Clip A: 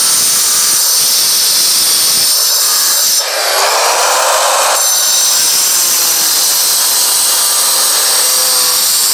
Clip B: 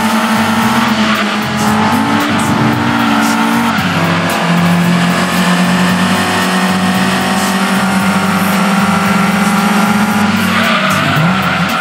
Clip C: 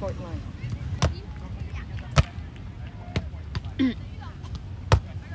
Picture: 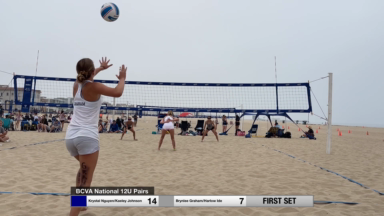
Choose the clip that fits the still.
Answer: C